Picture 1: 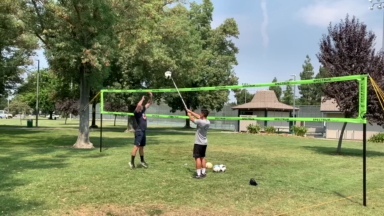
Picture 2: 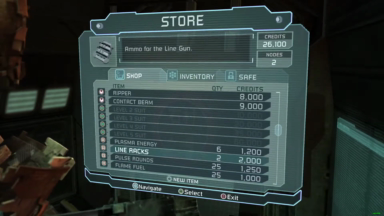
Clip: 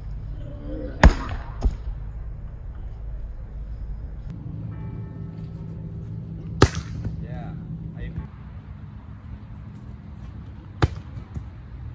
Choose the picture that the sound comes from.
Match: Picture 1